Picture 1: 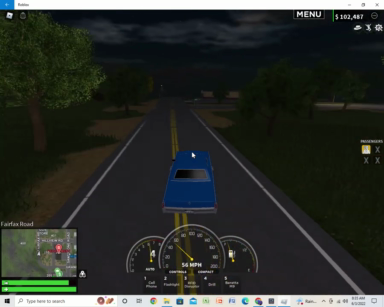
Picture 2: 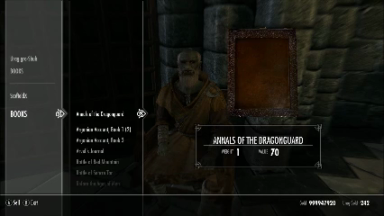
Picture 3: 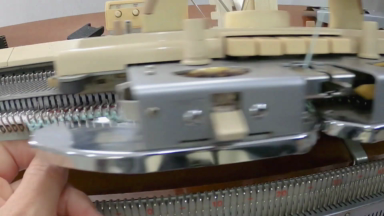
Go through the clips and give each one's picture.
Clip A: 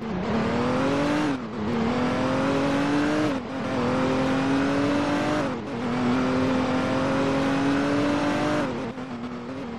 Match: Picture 1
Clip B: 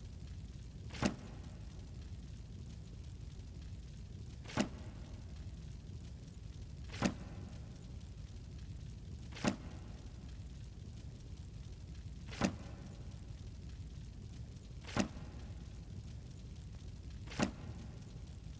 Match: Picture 2